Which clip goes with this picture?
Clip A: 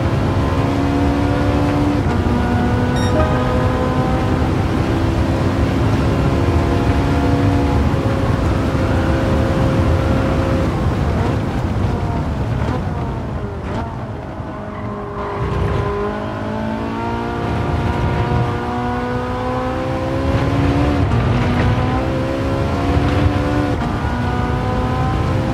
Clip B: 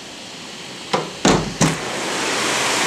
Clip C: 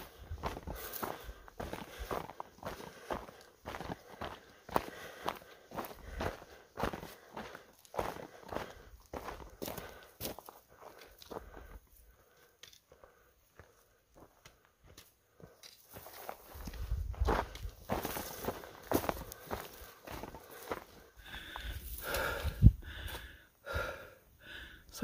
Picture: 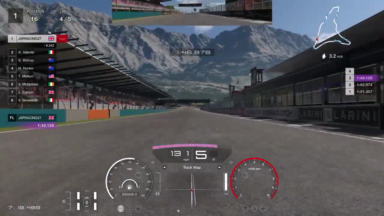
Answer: A